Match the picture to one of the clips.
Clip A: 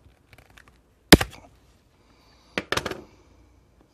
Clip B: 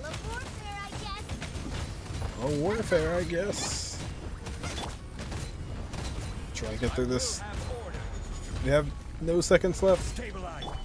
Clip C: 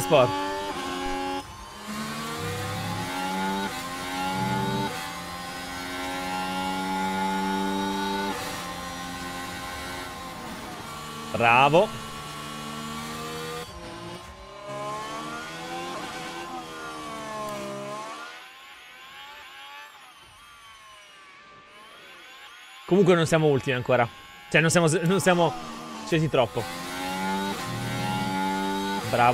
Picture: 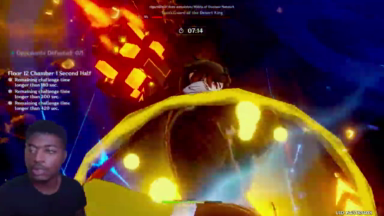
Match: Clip B